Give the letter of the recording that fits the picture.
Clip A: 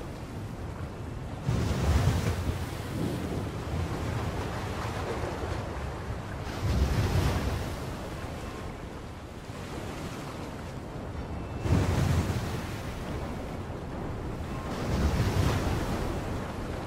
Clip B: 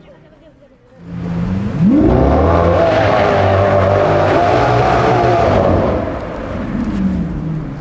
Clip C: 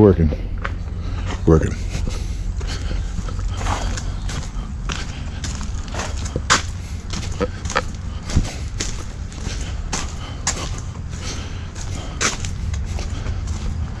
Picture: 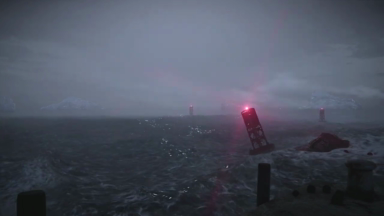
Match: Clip A